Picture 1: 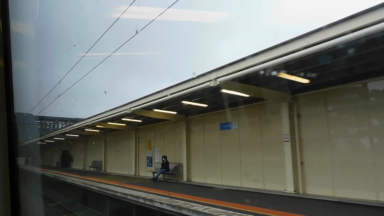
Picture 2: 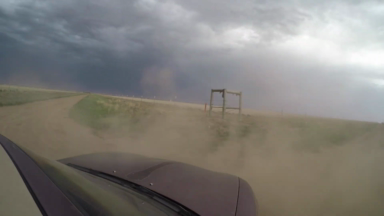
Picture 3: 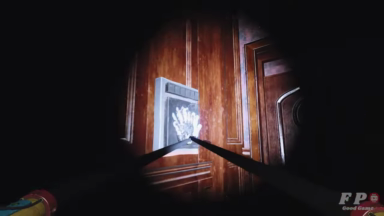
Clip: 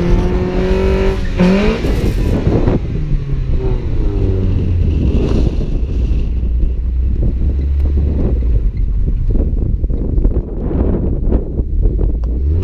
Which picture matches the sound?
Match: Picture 2